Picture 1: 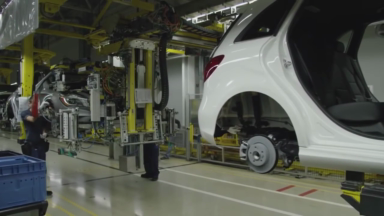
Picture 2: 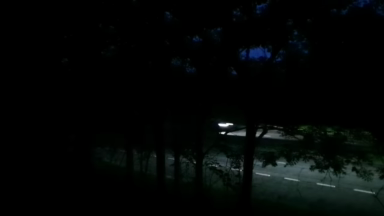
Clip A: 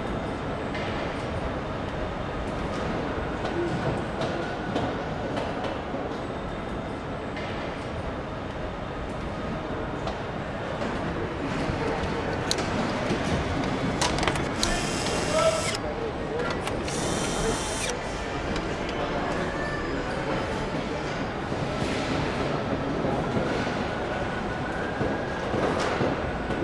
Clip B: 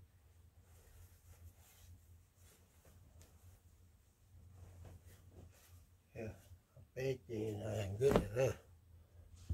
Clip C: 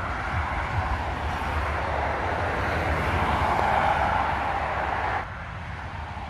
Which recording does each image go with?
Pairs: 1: A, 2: C